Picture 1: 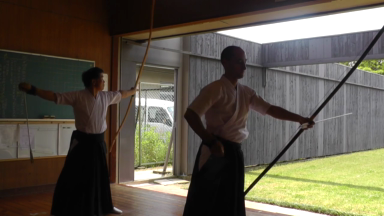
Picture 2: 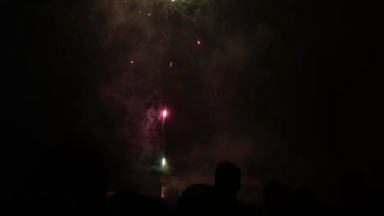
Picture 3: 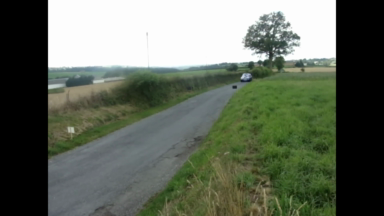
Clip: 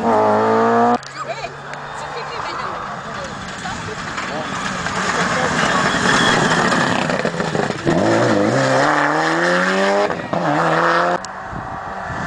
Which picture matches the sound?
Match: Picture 3